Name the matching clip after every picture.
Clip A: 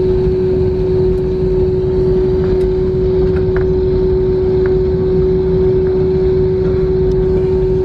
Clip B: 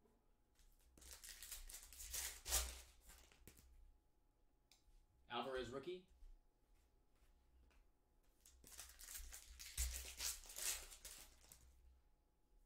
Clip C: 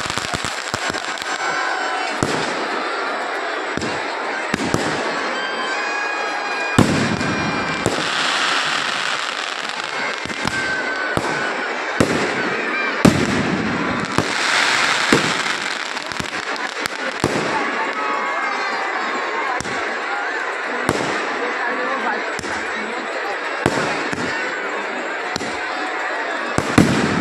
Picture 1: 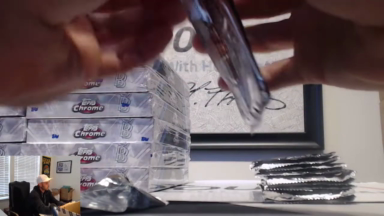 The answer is B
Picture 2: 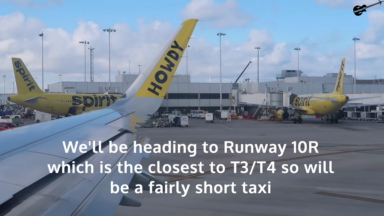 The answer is A